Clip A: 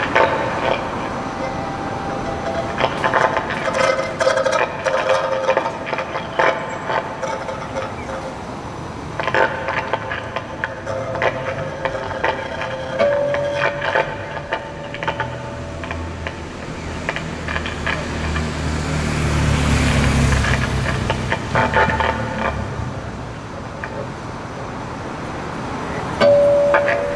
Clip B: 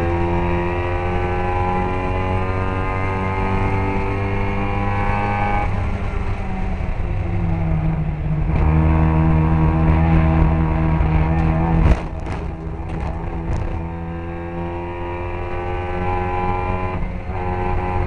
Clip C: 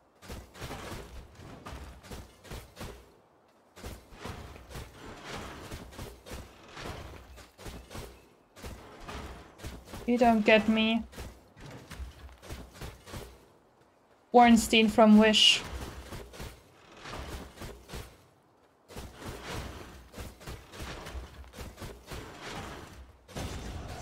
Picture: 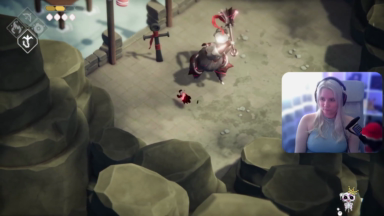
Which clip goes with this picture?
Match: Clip C